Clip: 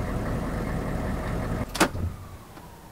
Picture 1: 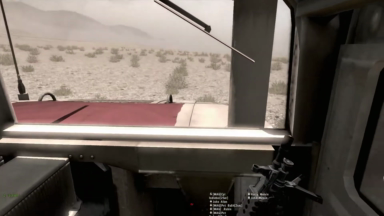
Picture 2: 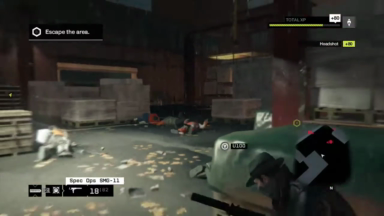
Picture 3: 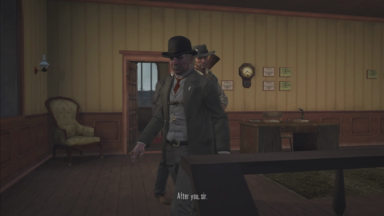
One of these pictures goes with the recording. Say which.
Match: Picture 1